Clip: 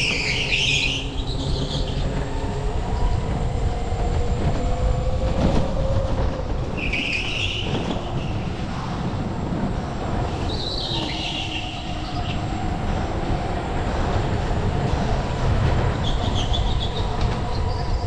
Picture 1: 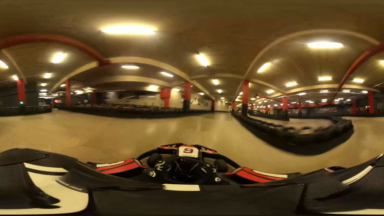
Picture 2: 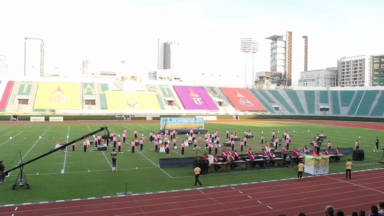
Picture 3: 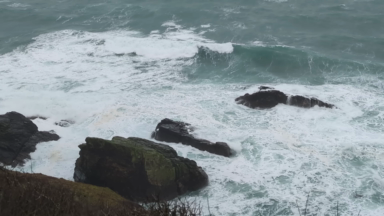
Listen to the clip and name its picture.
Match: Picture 1